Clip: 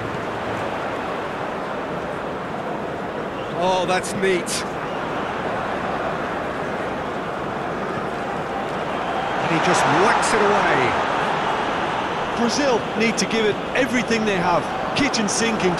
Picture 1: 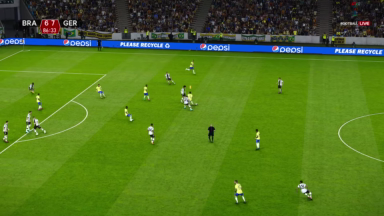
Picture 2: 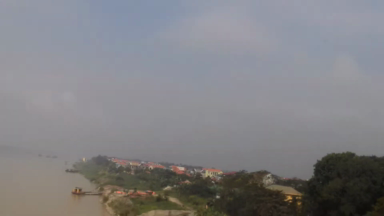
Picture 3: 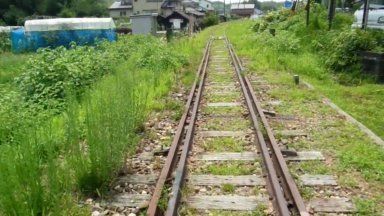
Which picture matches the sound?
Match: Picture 1